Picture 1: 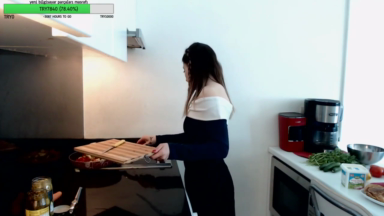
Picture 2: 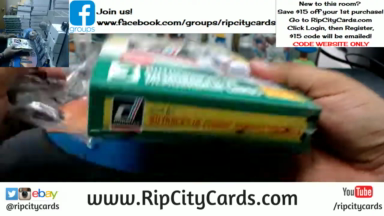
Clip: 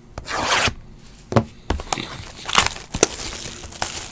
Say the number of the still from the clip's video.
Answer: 2